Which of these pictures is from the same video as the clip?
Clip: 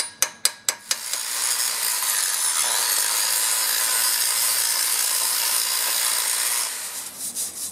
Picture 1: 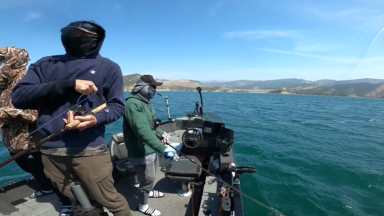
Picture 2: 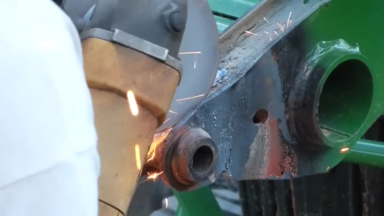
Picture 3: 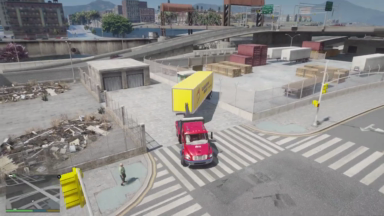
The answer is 2